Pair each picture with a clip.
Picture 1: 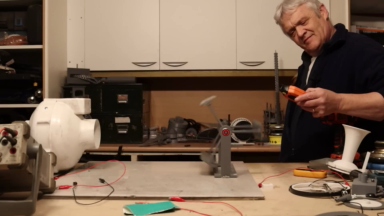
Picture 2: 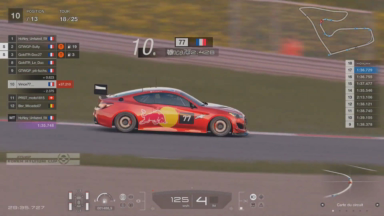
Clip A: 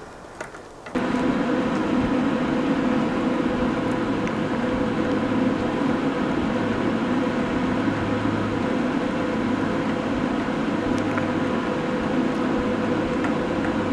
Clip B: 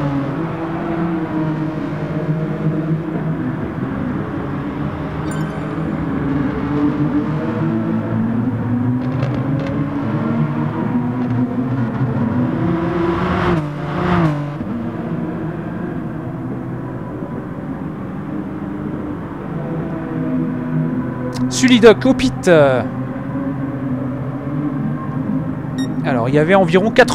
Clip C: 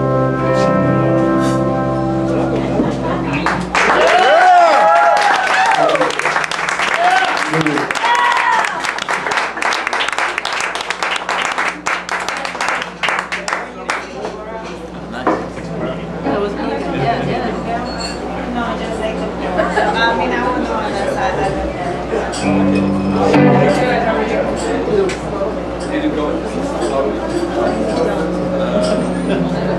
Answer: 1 A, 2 B